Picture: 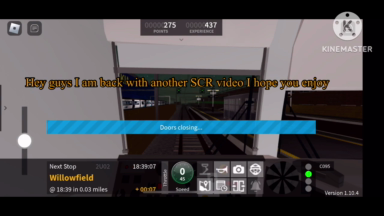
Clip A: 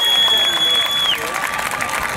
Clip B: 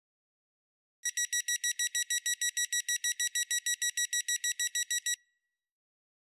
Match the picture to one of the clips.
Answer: B